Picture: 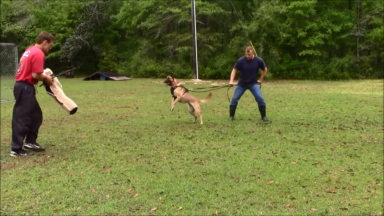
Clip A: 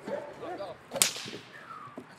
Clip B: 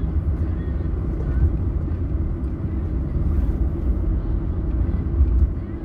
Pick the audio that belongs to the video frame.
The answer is A